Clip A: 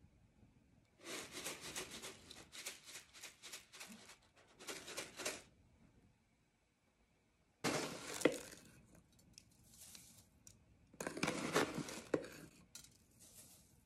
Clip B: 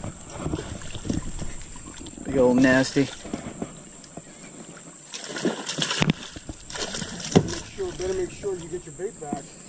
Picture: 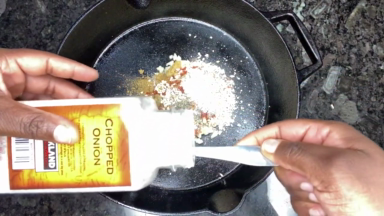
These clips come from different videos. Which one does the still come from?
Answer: A